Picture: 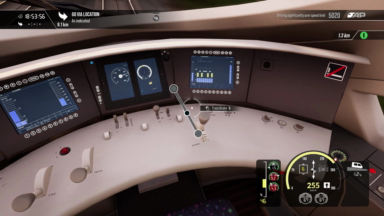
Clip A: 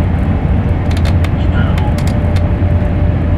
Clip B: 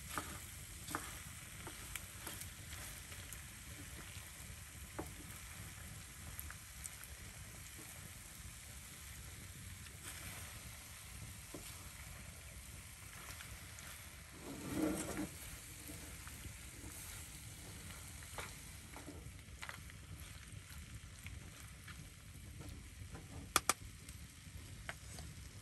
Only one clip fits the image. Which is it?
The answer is A